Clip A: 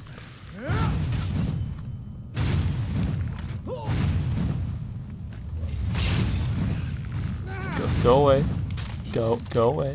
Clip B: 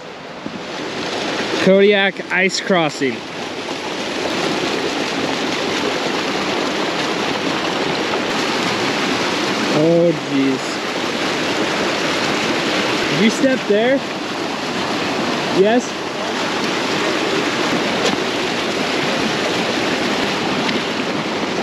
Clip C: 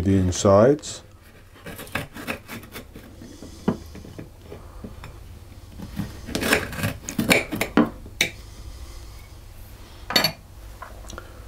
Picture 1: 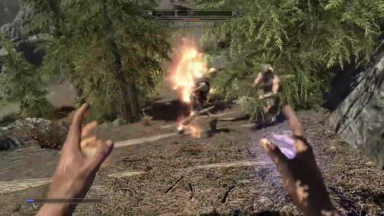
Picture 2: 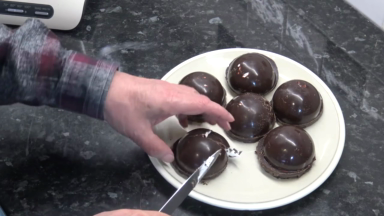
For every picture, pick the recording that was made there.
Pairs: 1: A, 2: C